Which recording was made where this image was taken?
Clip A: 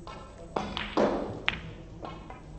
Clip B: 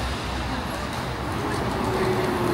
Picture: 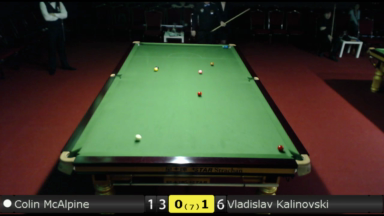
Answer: A